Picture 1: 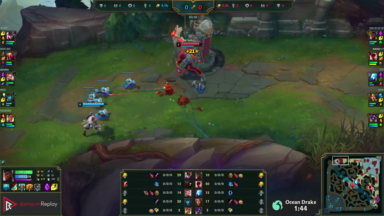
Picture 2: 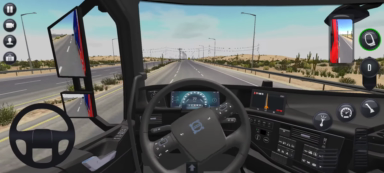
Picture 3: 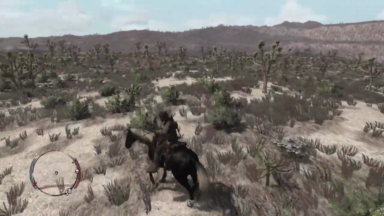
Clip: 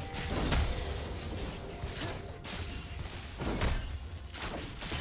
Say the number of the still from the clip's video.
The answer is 1